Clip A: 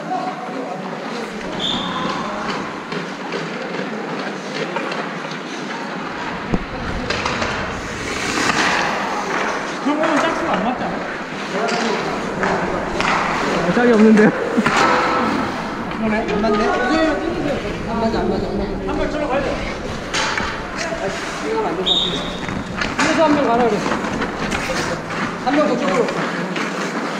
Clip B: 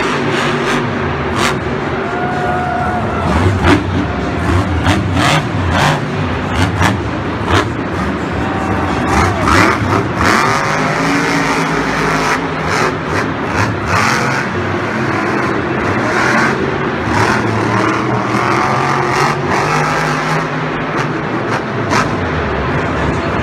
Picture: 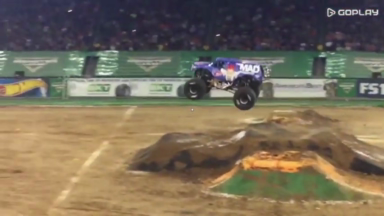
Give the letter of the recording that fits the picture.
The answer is B